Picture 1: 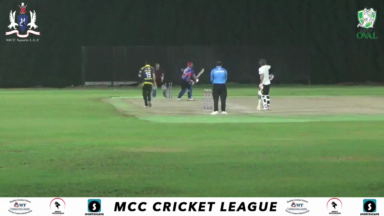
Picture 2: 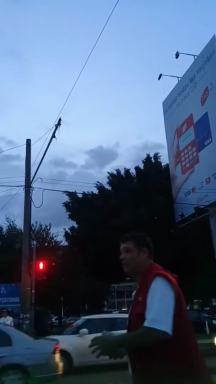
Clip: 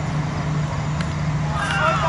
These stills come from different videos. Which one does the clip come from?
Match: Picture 1